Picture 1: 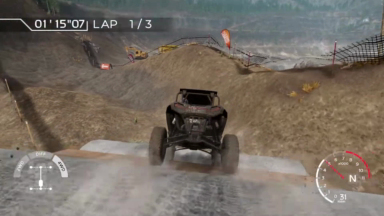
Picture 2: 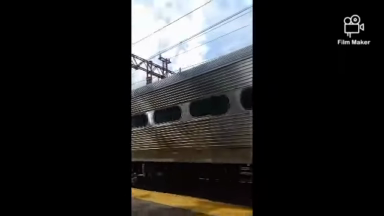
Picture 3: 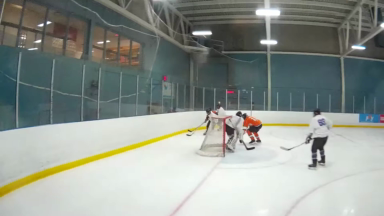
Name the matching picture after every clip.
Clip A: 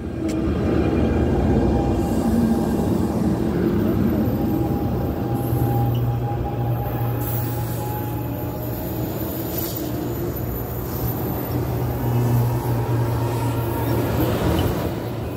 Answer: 2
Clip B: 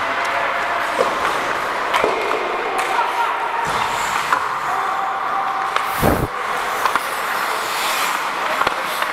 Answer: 3